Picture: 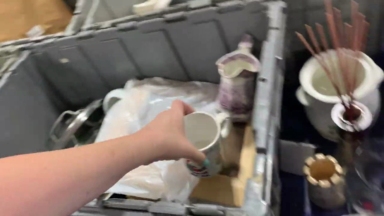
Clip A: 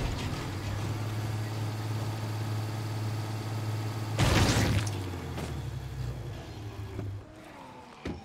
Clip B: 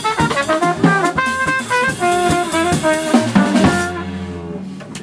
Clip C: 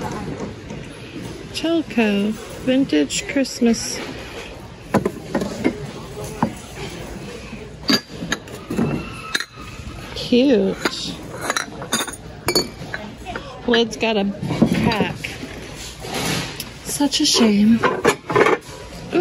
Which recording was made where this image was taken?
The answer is C